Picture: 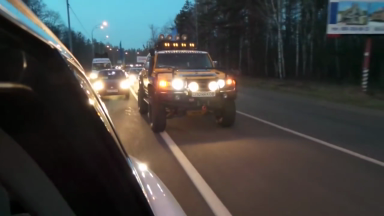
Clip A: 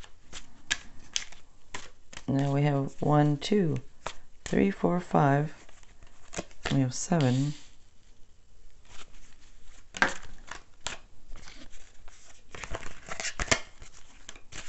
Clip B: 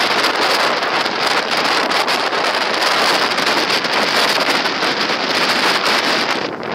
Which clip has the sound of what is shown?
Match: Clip B